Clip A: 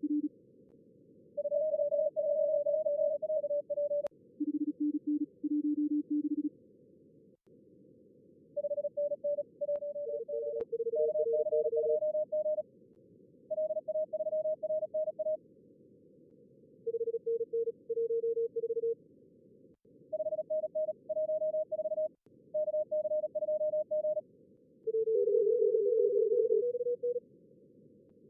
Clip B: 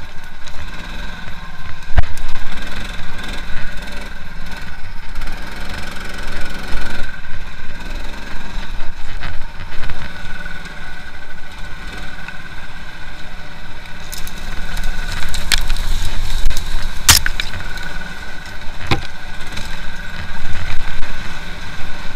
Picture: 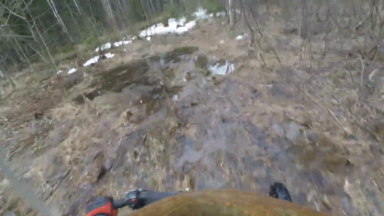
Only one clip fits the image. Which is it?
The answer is B